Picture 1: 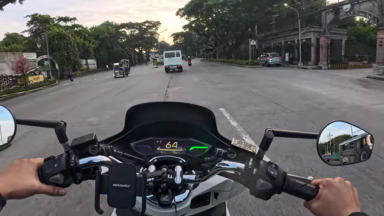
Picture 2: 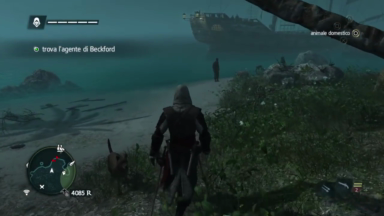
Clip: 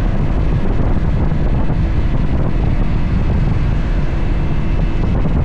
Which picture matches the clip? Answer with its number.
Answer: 1